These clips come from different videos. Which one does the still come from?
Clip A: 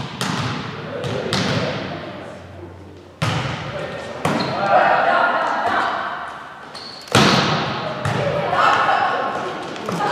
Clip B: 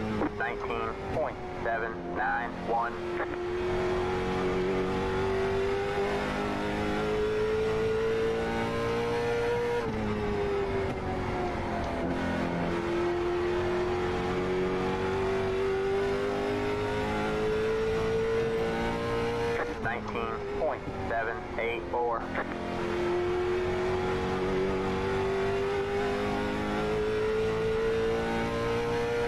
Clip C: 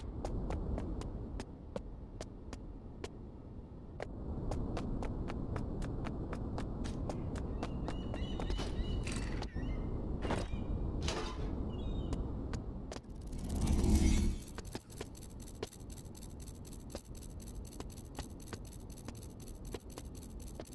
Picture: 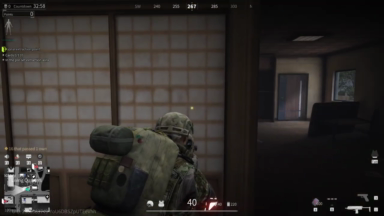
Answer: C